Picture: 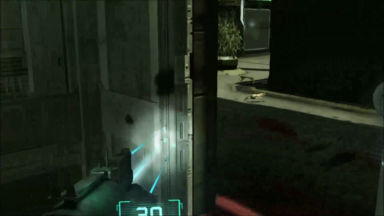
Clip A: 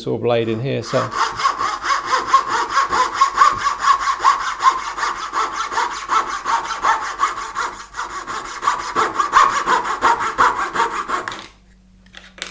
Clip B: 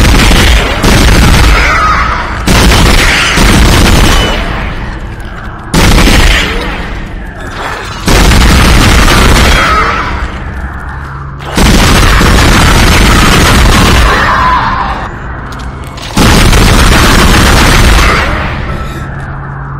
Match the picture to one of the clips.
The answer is B